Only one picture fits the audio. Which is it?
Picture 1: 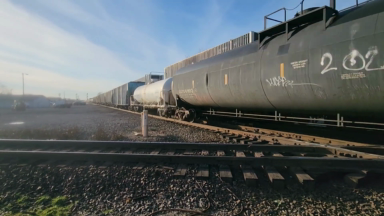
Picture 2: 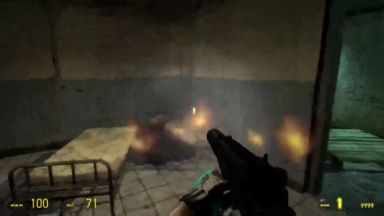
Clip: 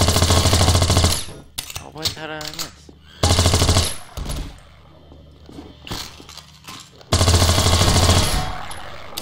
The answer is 2